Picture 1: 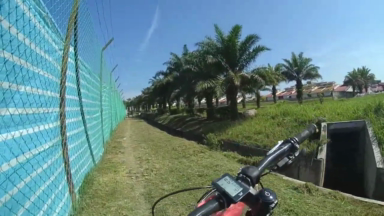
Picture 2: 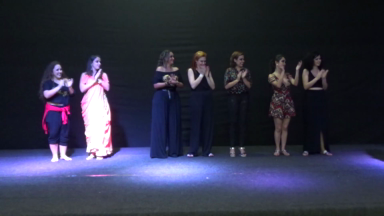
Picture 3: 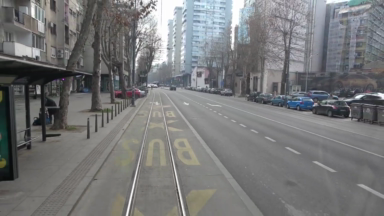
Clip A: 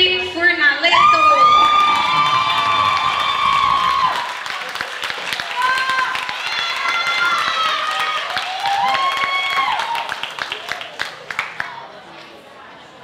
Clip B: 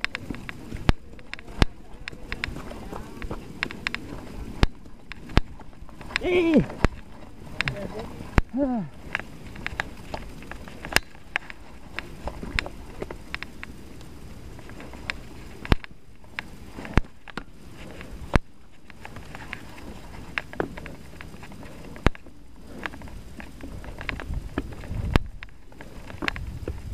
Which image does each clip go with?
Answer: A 2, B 1